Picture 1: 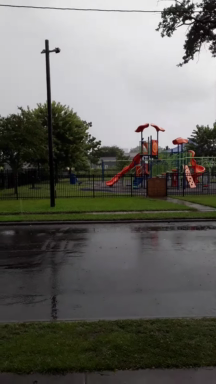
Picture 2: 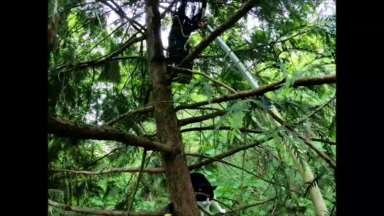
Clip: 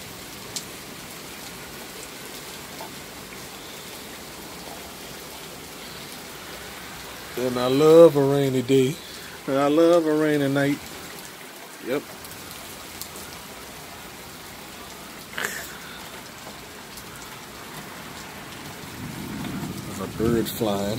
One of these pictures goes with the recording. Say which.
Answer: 1